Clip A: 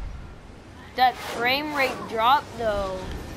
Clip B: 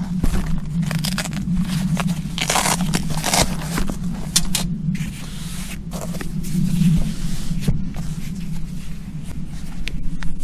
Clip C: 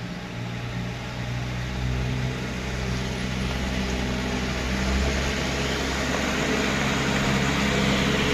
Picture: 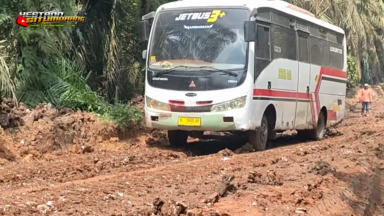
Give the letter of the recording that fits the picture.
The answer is C